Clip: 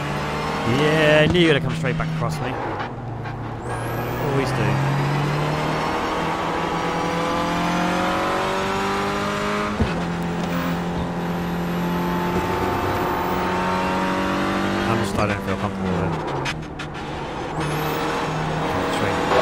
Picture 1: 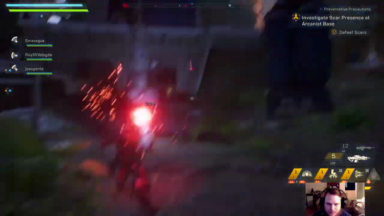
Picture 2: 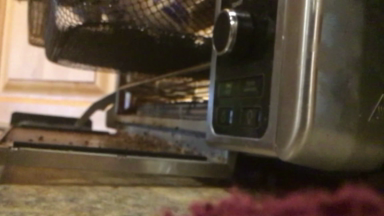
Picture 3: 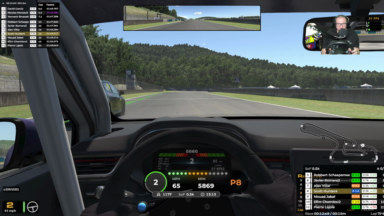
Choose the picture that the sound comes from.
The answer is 3